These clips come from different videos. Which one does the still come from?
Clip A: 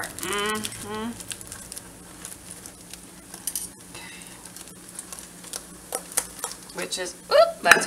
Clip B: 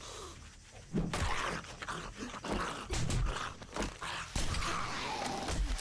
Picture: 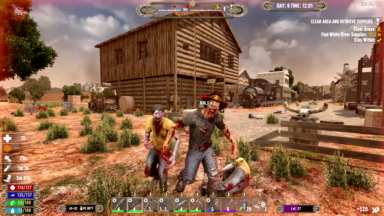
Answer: B